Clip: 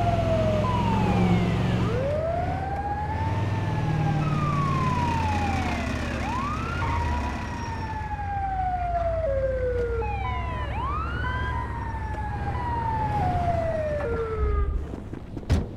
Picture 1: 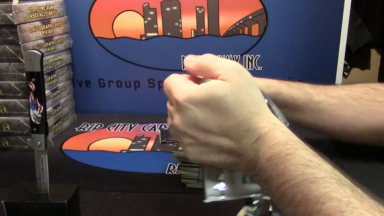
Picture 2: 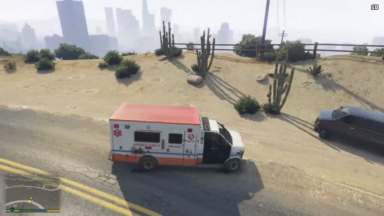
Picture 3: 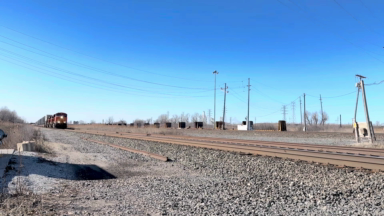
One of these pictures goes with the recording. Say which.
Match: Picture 2